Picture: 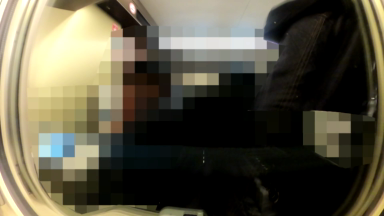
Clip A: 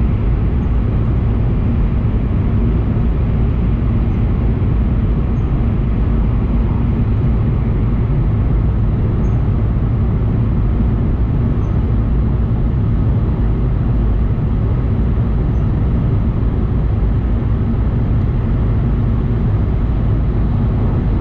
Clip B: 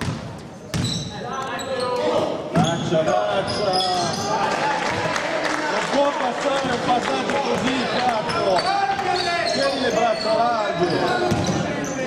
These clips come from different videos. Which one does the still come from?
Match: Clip A